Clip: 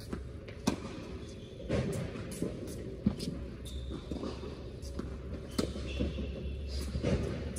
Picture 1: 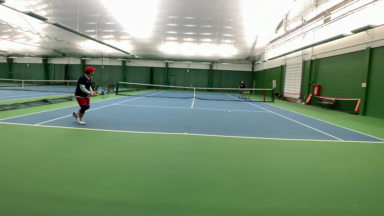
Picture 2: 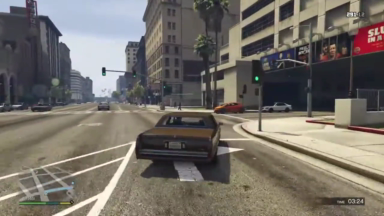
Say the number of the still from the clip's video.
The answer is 1